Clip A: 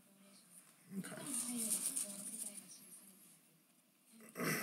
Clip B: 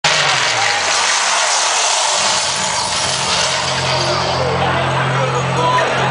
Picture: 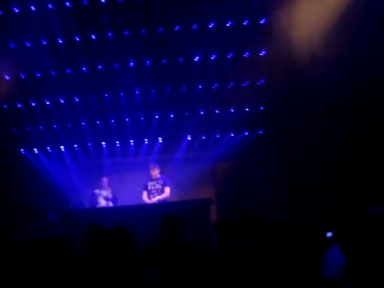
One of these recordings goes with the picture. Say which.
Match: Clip B